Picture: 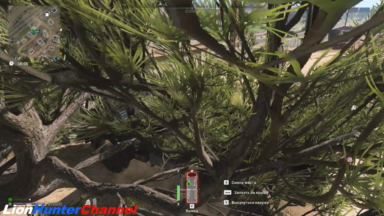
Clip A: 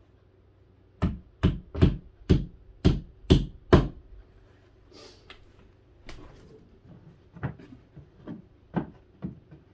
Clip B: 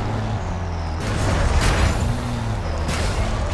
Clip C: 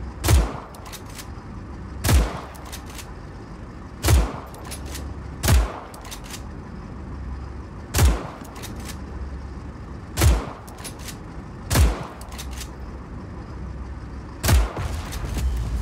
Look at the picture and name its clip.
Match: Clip B